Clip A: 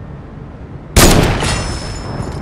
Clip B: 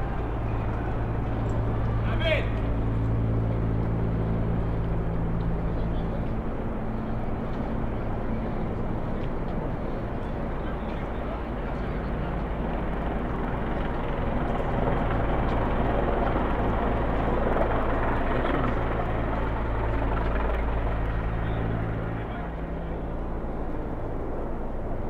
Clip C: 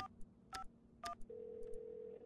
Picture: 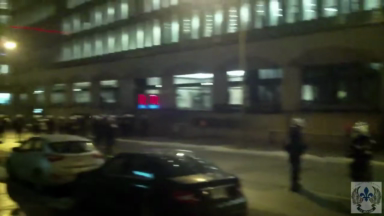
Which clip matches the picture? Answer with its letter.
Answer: B